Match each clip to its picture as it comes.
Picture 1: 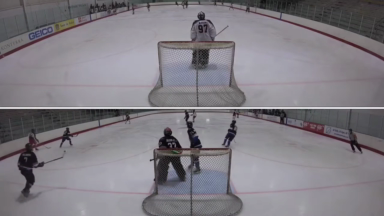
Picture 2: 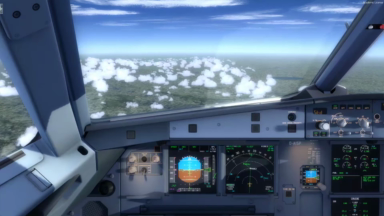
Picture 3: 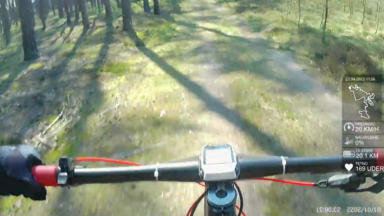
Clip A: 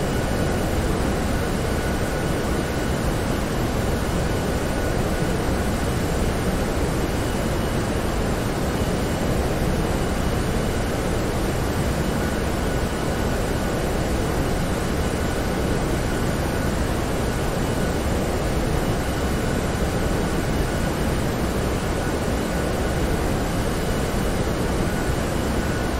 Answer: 2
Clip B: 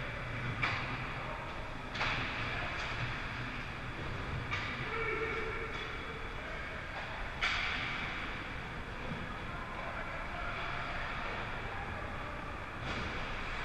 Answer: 1